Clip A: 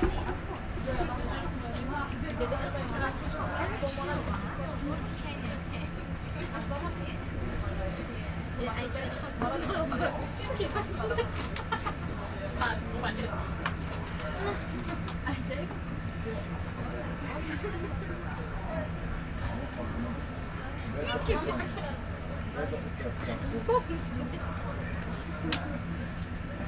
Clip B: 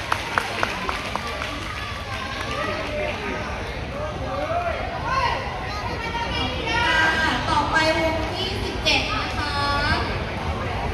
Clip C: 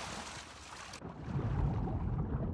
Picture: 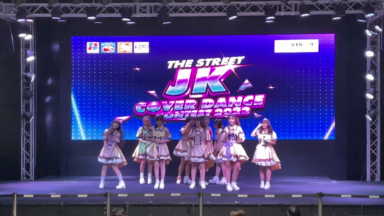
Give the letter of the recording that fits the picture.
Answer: B